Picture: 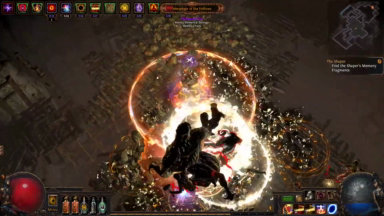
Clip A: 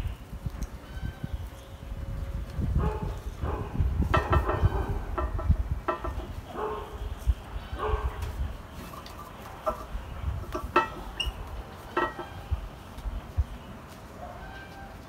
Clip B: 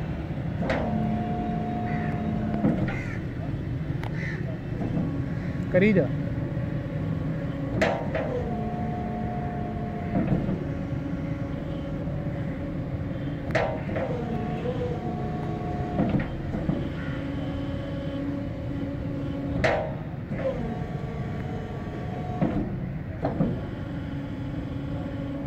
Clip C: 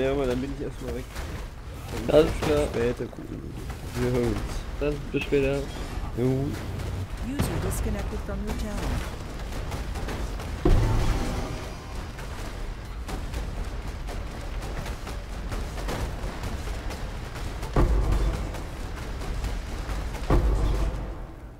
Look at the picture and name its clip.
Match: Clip C